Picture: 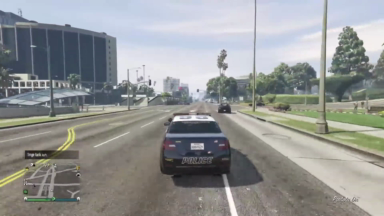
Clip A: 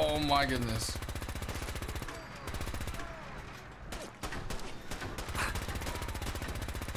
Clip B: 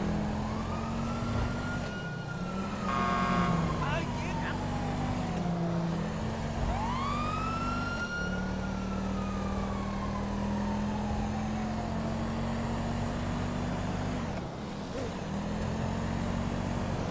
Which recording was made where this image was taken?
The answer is B